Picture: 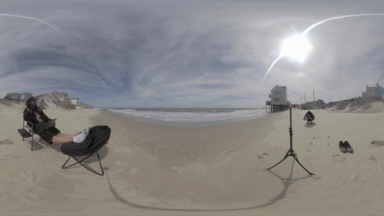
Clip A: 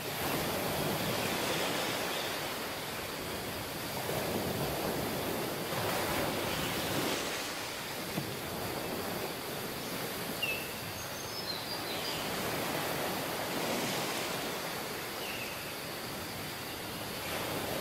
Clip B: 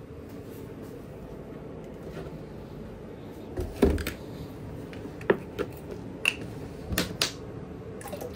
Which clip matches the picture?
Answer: A